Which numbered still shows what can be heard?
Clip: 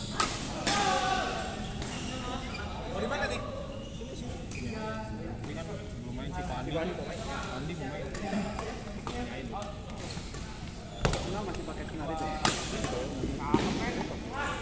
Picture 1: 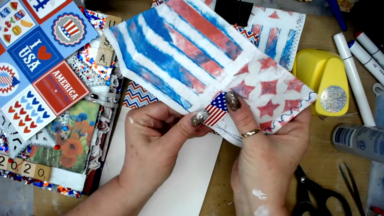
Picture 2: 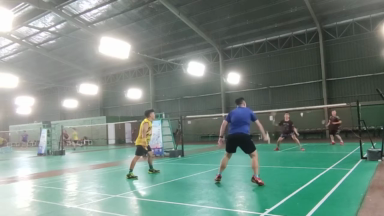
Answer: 2